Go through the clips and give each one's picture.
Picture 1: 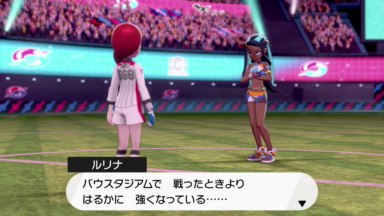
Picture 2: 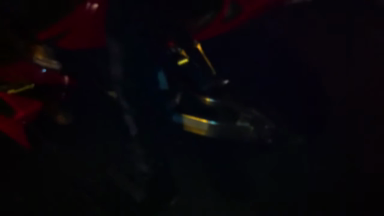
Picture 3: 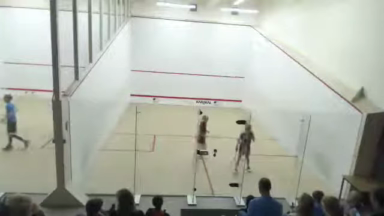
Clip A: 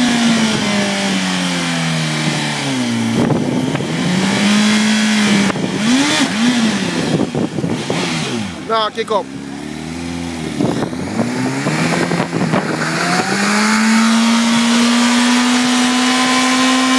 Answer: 2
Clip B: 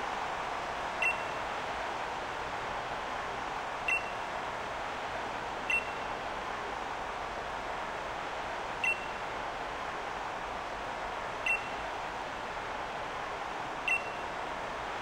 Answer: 1